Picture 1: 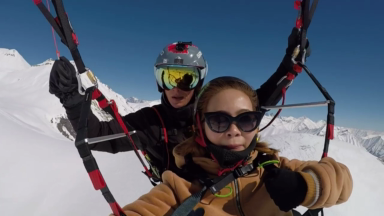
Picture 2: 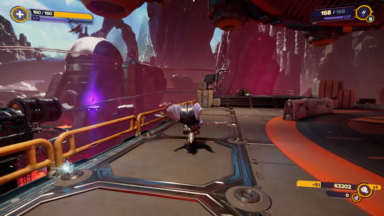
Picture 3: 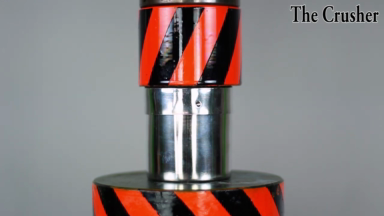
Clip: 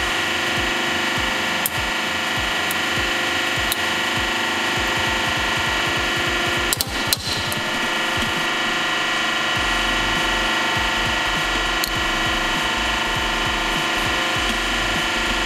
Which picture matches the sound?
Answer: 3